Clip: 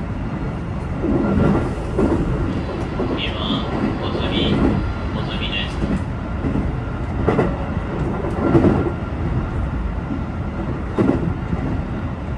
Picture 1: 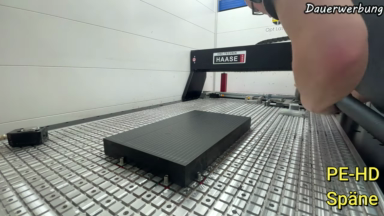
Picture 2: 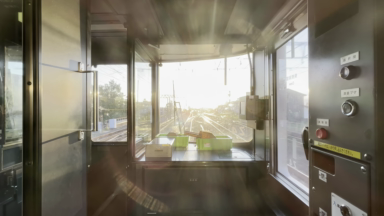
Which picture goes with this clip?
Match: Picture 2